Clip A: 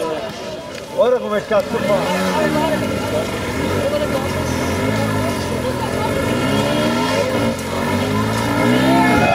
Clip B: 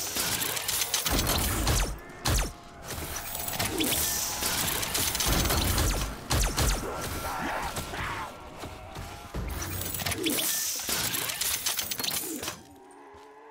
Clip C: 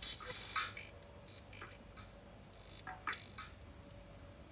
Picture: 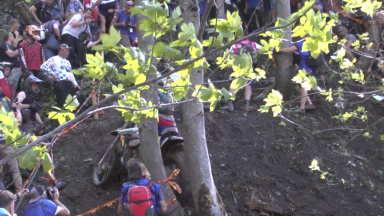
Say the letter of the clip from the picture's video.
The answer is A